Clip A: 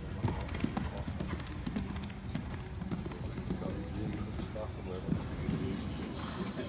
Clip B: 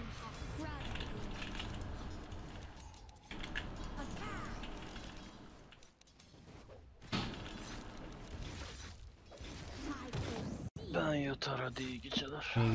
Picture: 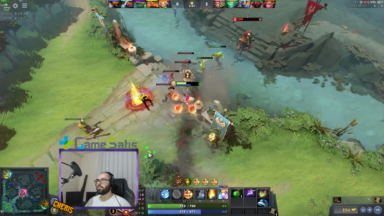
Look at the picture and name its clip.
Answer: B